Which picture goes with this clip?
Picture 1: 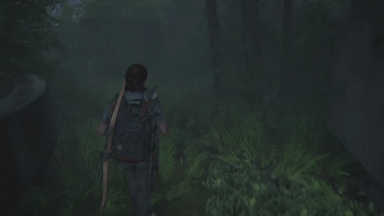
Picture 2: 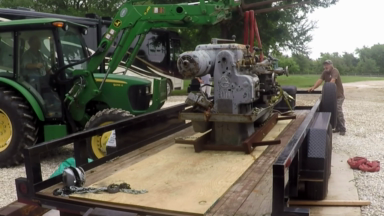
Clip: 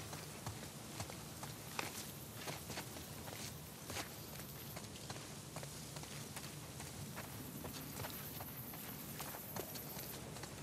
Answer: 1